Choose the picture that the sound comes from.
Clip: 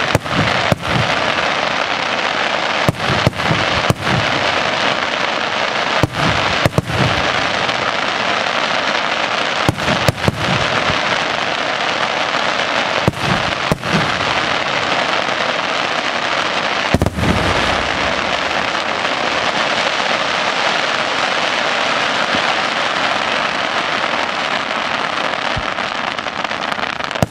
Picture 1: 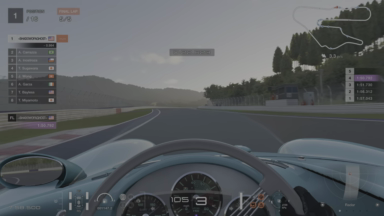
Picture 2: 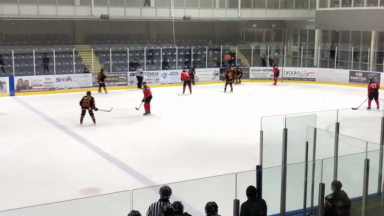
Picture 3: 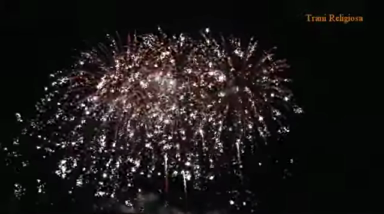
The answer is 3